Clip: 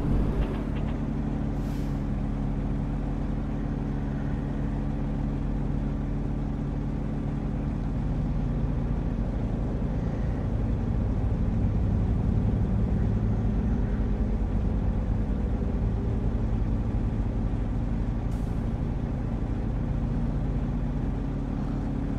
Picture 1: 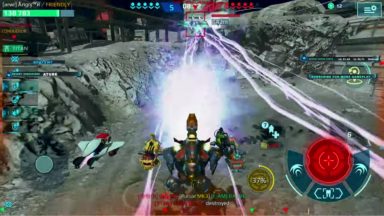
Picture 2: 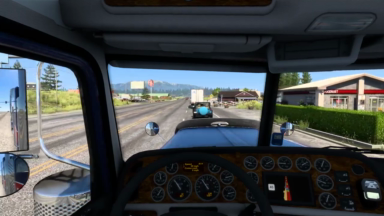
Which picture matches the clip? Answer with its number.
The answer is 2